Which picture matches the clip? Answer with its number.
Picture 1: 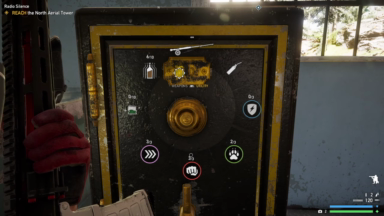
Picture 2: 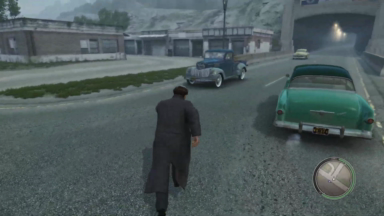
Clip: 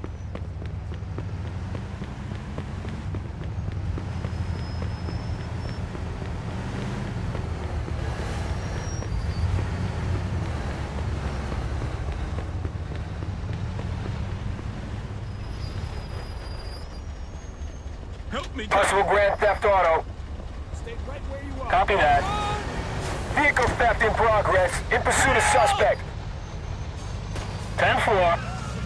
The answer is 2